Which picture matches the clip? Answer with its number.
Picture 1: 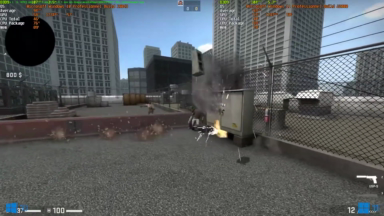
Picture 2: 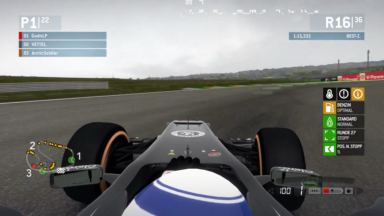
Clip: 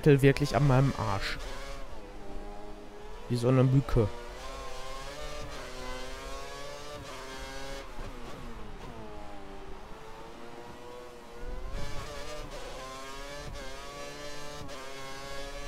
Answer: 2